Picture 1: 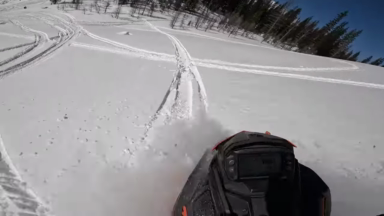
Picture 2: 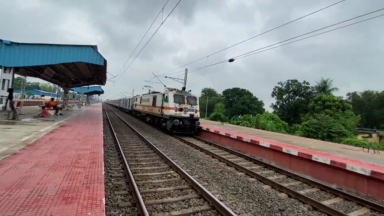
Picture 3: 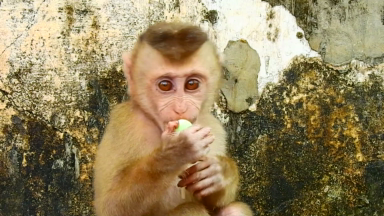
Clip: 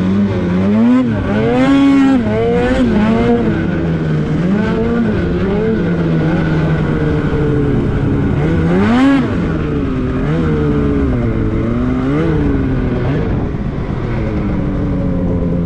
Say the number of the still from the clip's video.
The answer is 1